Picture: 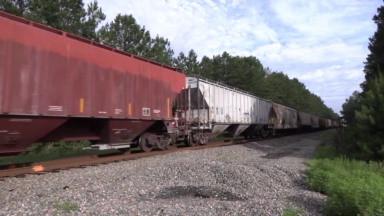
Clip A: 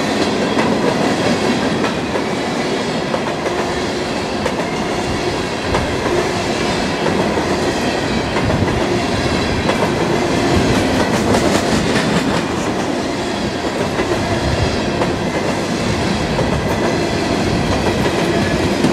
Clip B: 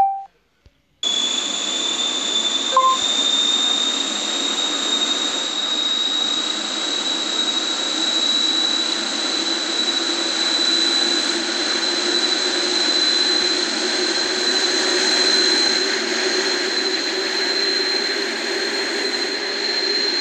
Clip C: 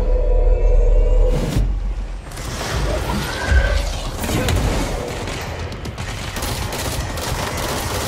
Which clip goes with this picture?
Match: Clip A